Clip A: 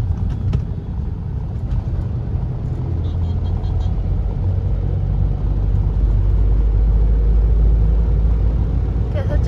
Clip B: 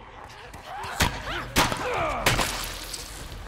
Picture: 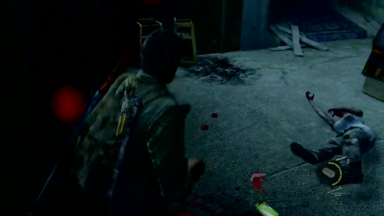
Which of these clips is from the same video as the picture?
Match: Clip B